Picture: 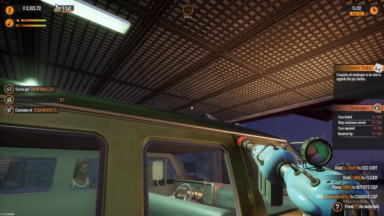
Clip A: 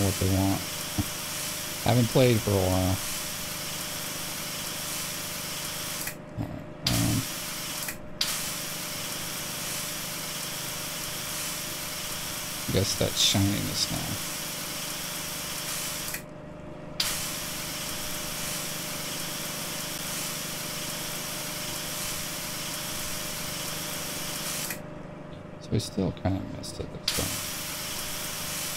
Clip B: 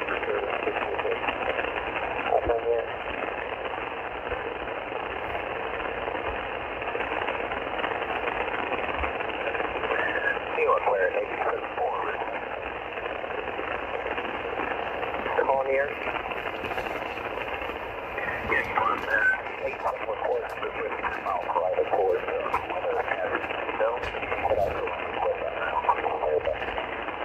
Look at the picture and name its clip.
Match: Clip A